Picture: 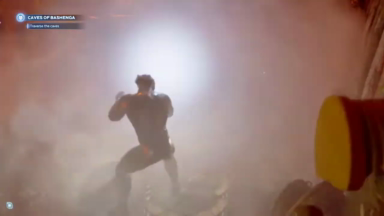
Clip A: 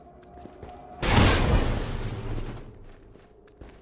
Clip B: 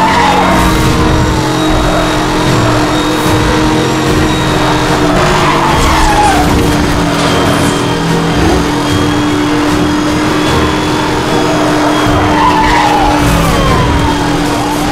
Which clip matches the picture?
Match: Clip A